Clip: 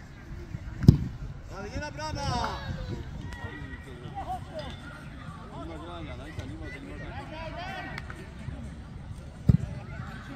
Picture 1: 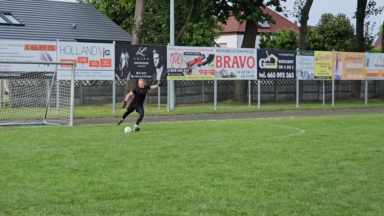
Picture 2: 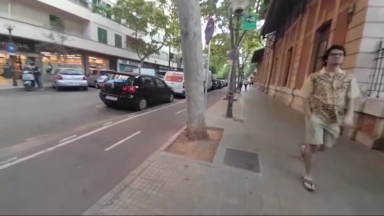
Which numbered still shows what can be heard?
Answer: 1